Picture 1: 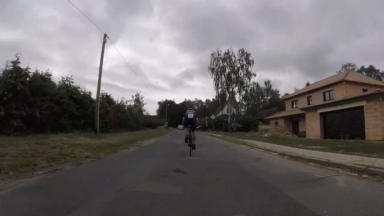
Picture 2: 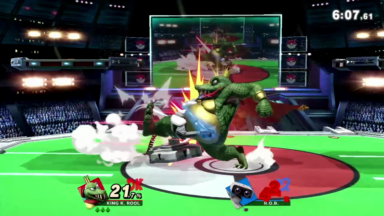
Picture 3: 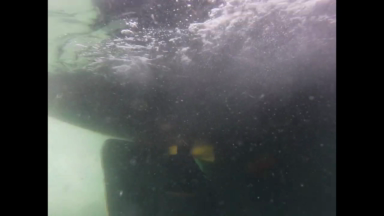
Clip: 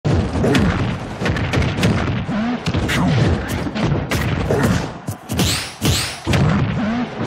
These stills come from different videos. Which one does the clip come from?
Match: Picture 2